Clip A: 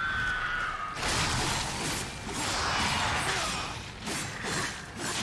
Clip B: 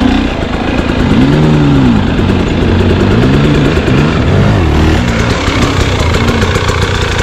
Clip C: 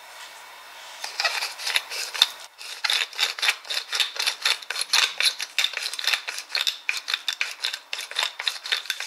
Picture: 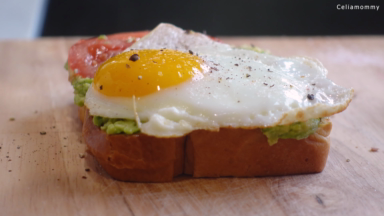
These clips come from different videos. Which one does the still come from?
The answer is C